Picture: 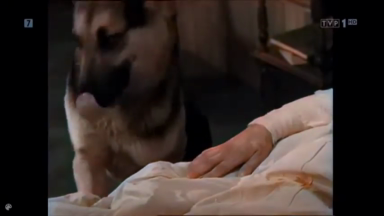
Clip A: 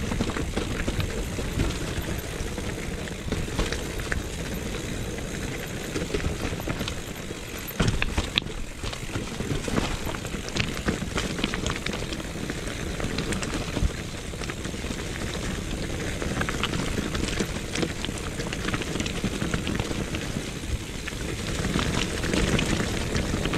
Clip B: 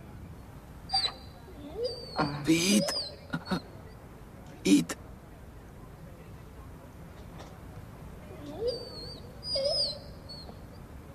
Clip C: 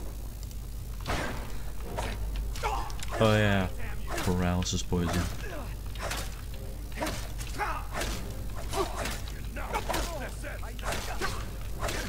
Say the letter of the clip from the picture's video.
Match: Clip B